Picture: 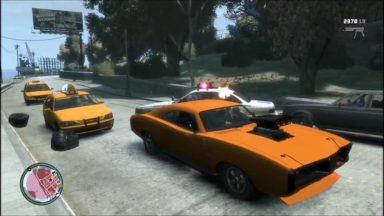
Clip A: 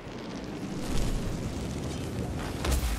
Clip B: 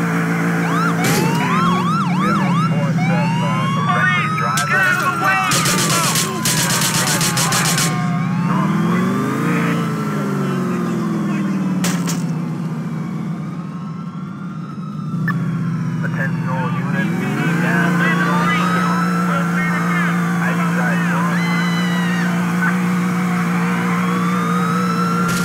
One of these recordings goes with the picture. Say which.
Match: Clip B